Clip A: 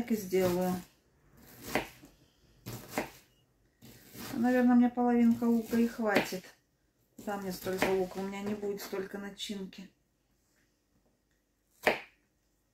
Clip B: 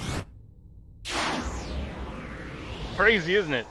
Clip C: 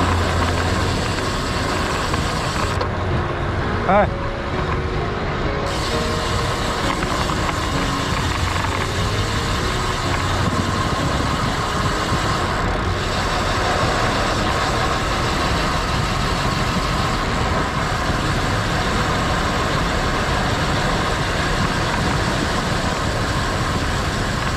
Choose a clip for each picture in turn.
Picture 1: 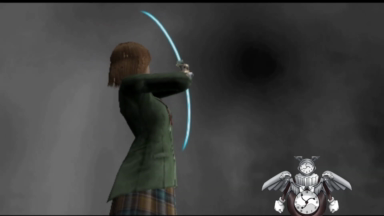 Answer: B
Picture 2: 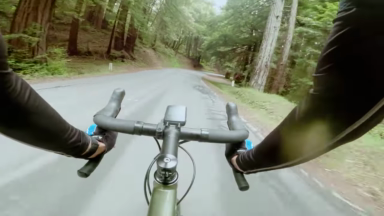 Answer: C